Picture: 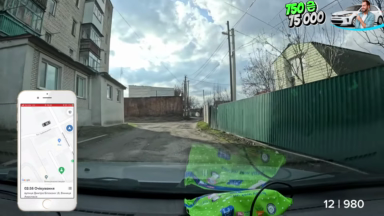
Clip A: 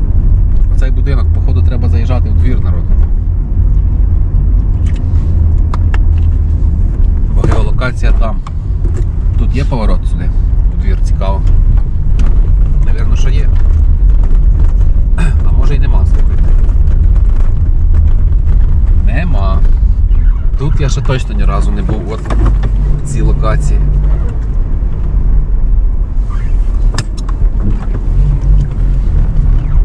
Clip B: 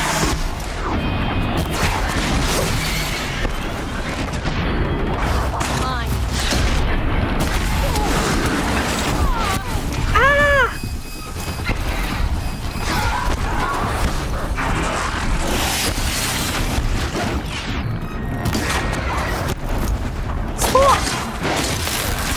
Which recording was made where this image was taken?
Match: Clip A